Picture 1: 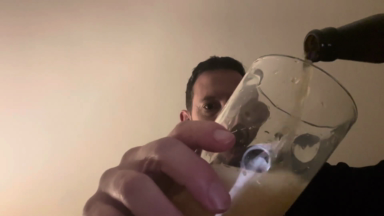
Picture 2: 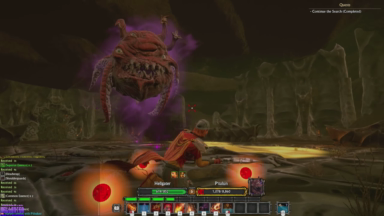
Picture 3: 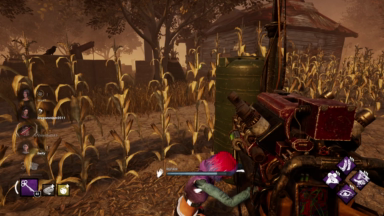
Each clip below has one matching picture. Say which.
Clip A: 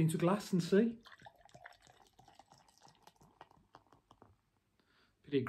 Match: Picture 1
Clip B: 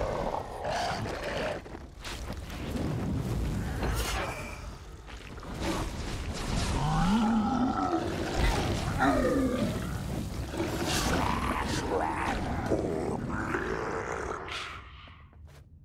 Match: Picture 2